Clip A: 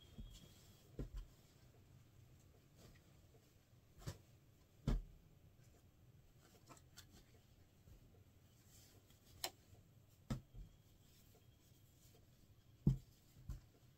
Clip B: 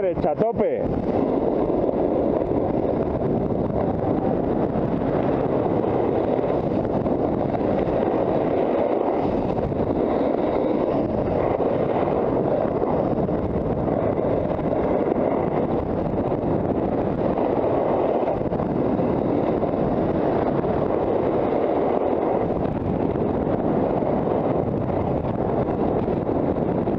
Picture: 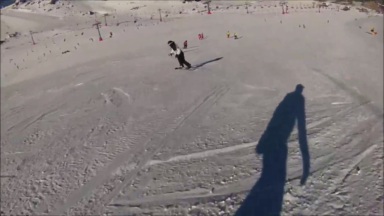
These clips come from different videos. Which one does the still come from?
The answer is B